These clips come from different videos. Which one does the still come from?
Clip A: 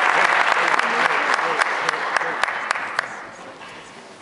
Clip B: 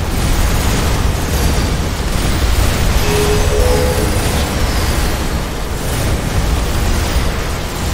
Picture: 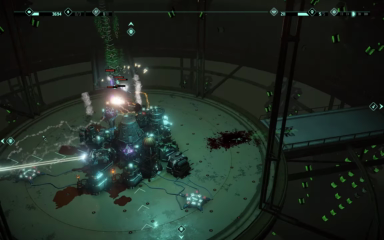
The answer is B